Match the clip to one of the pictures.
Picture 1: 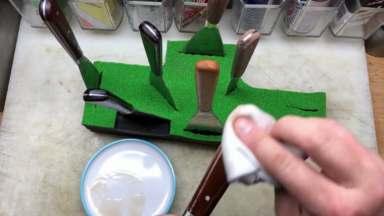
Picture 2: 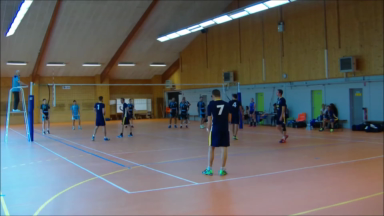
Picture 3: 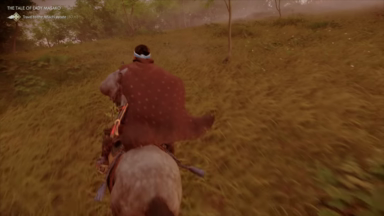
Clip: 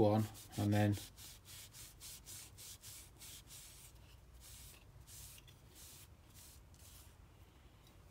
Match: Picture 1